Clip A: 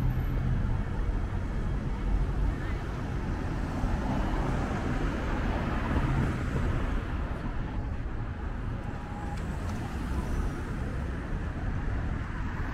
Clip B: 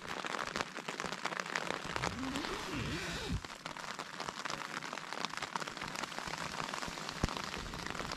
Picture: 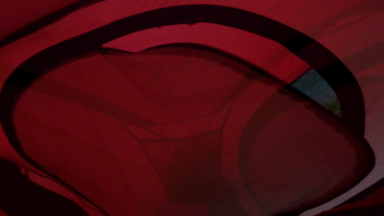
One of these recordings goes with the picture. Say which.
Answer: B